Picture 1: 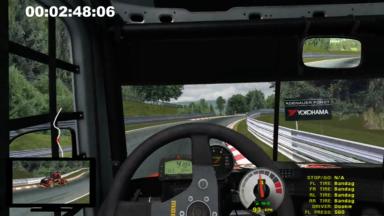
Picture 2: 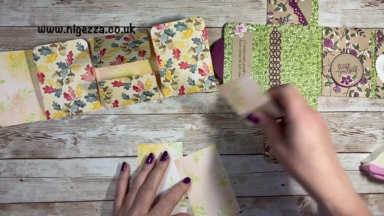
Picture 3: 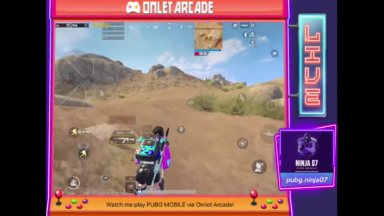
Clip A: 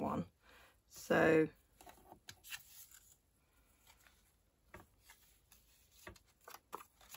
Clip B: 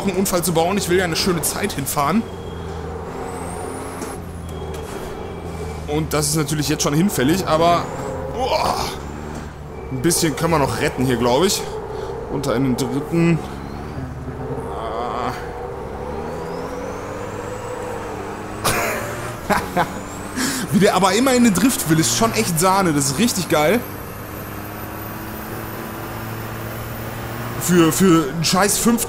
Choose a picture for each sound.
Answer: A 2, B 1